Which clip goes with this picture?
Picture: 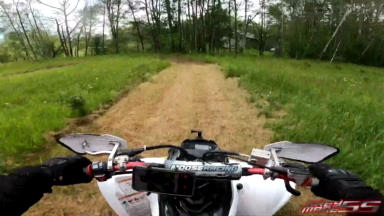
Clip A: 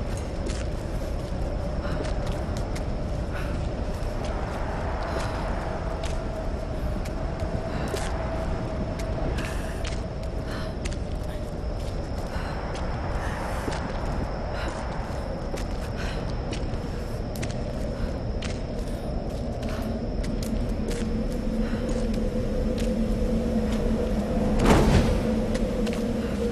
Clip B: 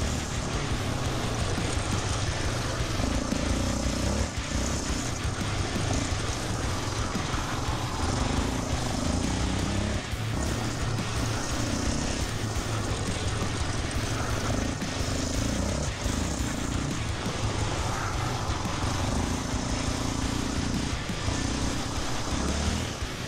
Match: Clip B